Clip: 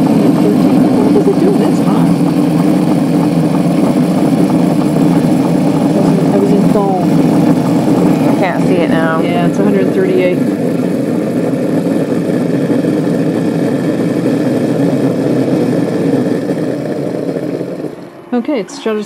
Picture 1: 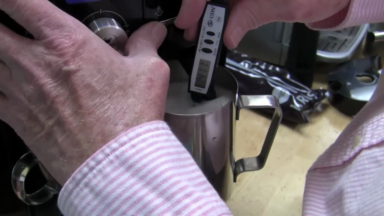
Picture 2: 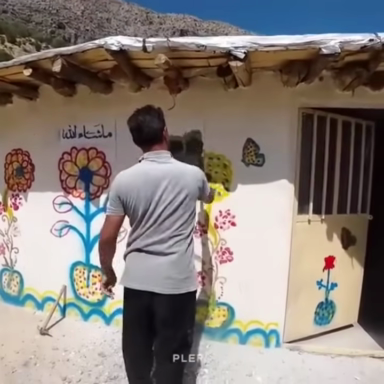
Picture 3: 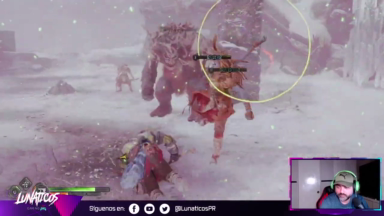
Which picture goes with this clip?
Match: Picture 1